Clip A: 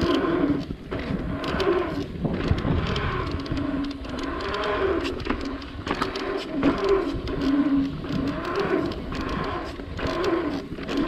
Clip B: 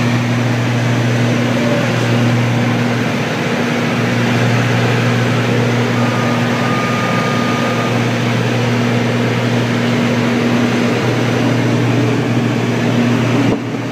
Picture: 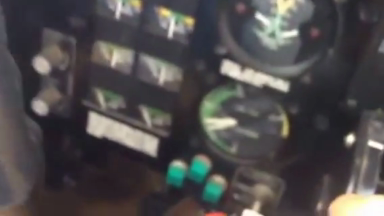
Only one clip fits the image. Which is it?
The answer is B